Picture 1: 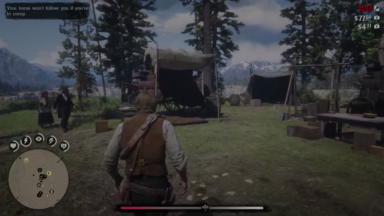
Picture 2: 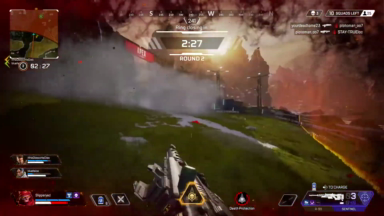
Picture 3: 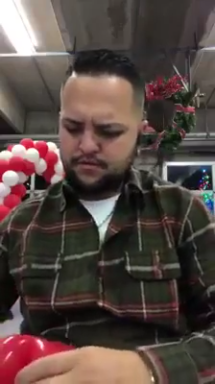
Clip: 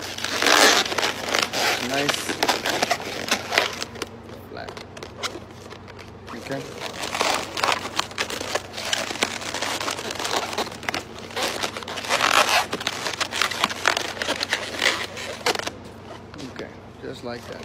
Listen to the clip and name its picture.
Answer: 3